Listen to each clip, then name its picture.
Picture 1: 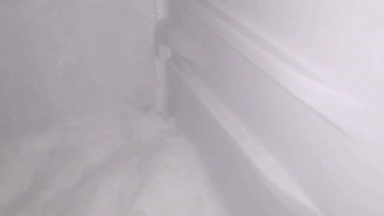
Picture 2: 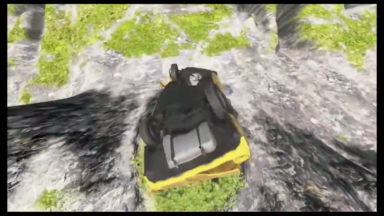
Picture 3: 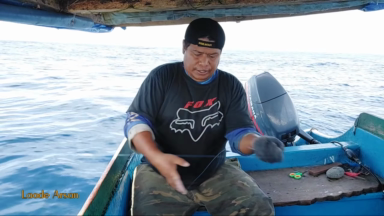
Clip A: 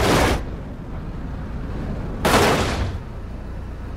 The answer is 2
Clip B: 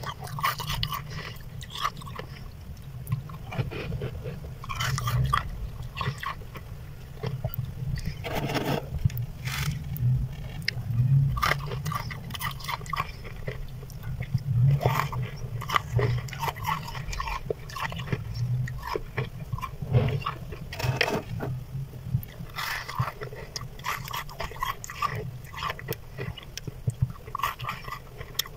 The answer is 1